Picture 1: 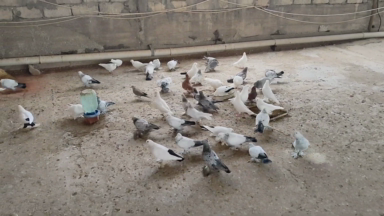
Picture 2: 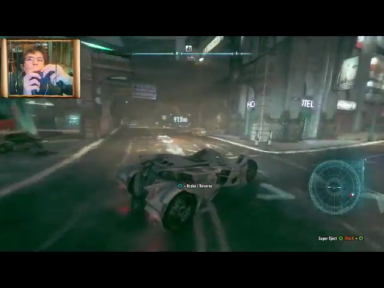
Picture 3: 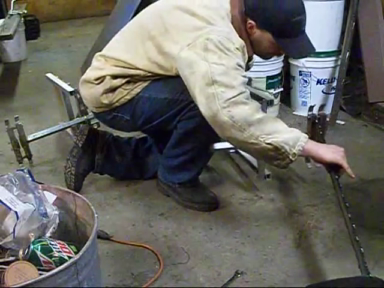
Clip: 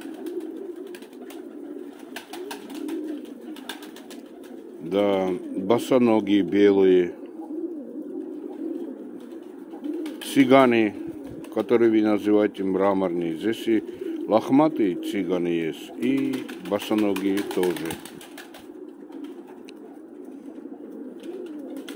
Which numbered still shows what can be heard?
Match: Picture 1